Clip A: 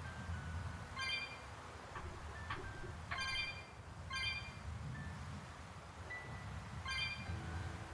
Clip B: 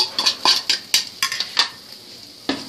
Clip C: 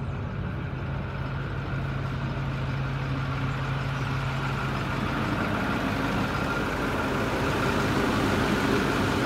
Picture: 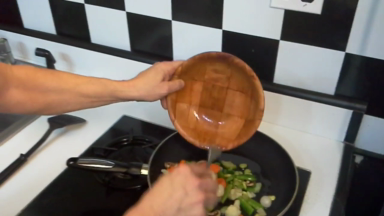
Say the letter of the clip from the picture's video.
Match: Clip B